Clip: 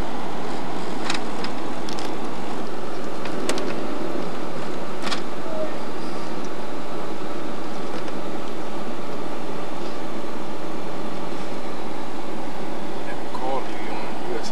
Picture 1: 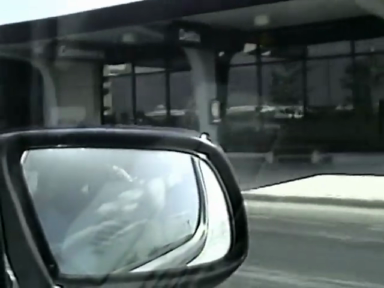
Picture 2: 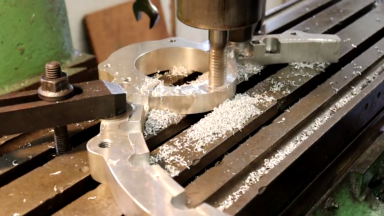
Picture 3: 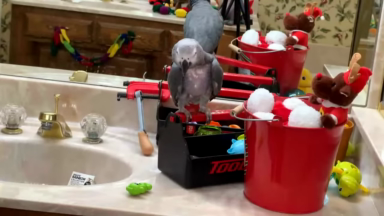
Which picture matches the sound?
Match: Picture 1